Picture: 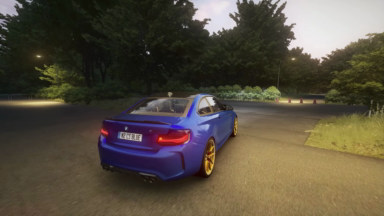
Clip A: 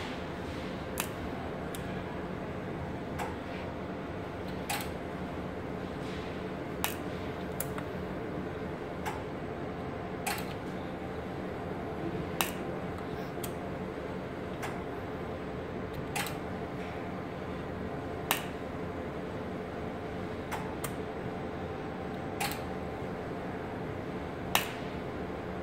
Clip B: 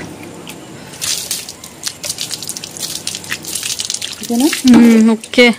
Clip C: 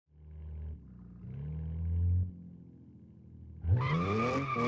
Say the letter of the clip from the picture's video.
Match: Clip C